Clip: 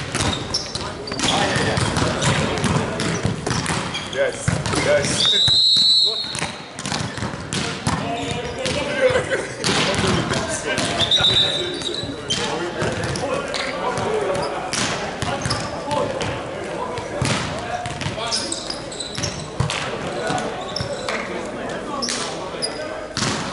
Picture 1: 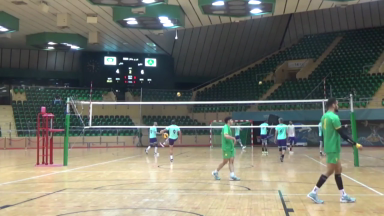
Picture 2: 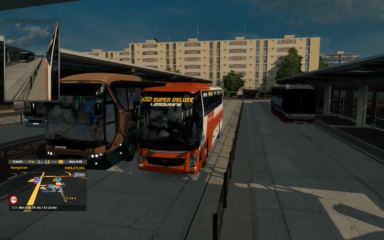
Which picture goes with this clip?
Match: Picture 1